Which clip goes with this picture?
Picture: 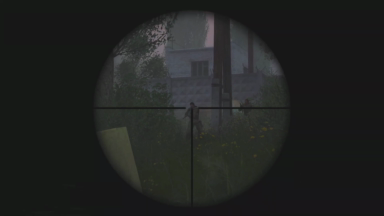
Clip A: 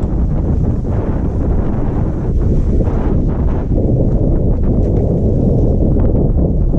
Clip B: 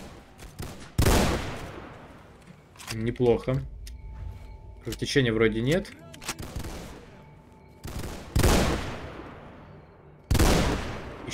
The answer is B